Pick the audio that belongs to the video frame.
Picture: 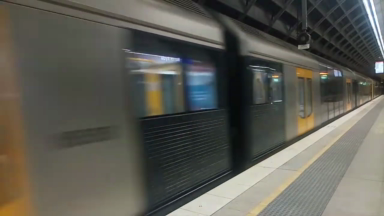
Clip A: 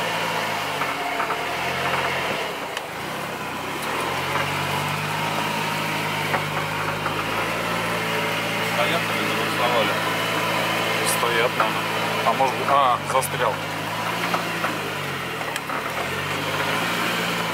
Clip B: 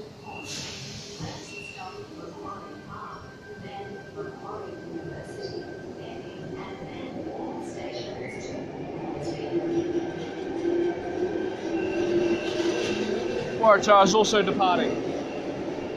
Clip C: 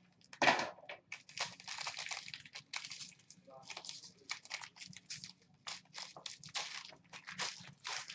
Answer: B